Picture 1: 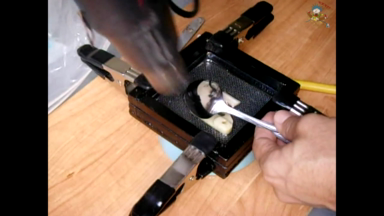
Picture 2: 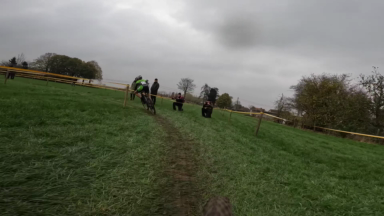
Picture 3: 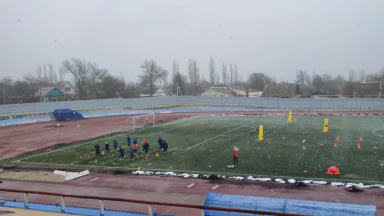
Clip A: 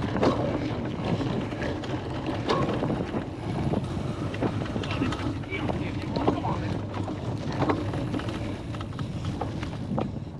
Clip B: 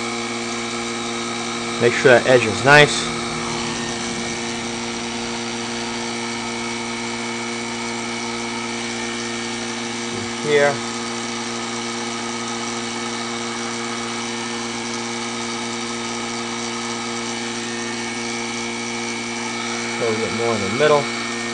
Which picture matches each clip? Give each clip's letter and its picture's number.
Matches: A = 2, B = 1